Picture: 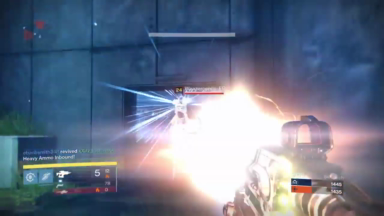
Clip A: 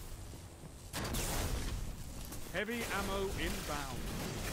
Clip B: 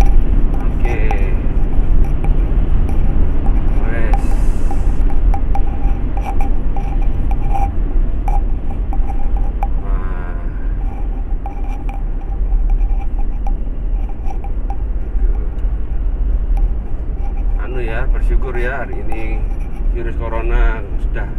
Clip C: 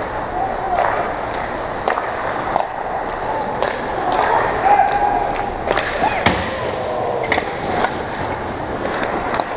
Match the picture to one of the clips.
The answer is A